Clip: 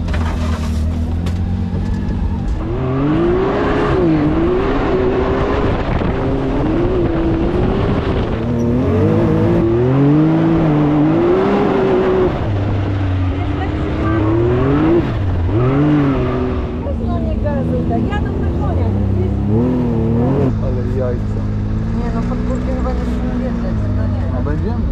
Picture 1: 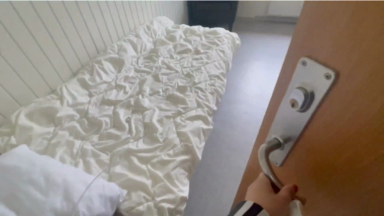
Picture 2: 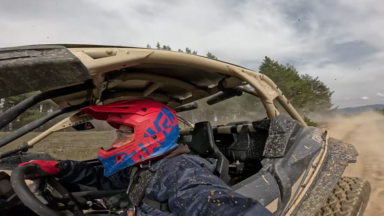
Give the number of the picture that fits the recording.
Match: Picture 2